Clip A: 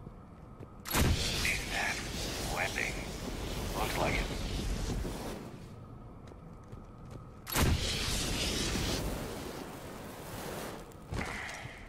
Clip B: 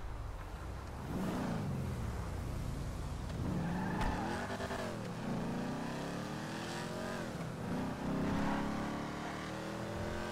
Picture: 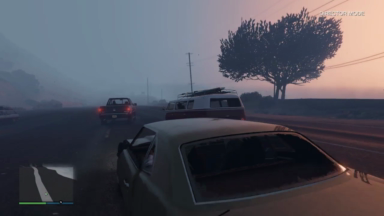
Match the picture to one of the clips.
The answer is B